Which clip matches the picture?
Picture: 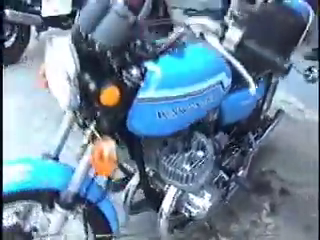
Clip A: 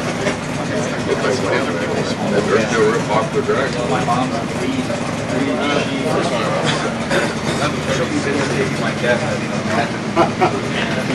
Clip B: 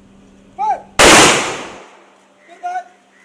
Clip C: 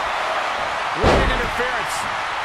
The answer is A